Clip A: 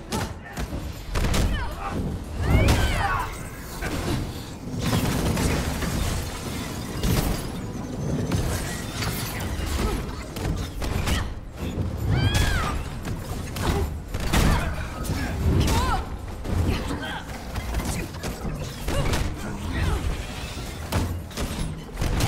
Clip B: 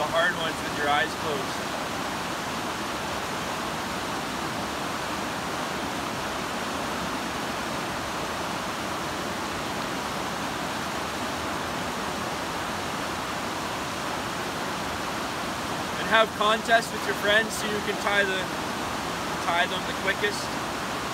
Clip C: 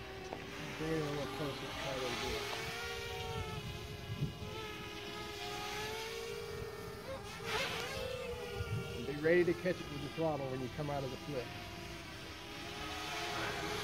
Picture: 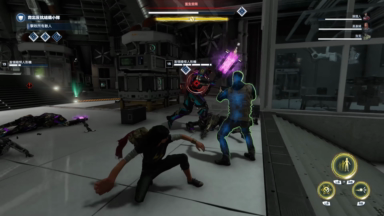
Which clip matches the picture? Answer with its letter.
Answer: A